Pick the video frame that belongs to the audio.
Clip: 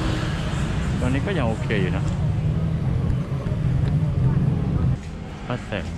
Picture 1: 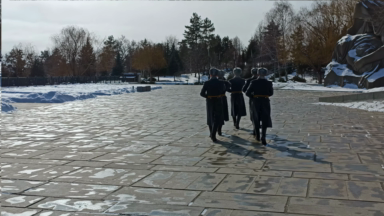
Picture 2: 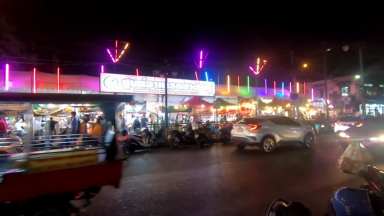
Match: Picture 2